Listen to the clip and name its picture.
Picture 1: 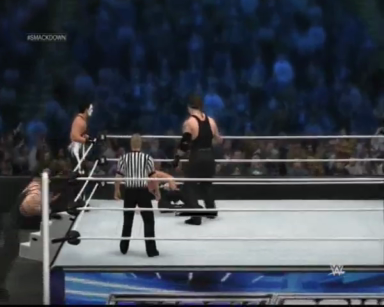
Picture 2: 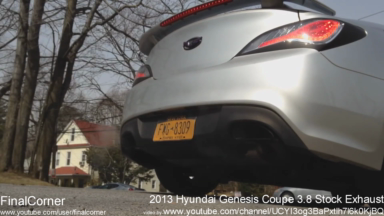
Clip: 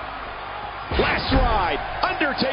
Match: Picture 1